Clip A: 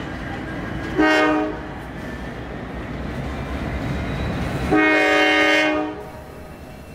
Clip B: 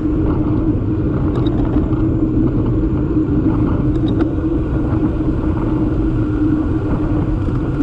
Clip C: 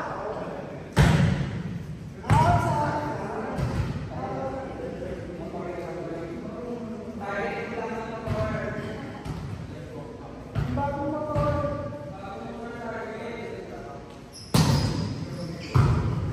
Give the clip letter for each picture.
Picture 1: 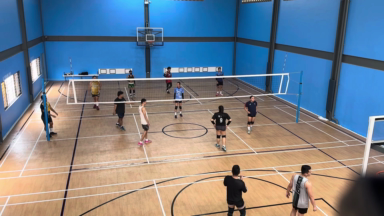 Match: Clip C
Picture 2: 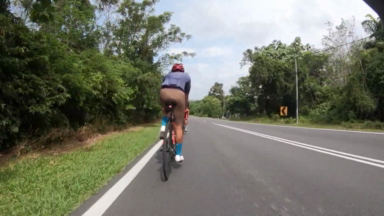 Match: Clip B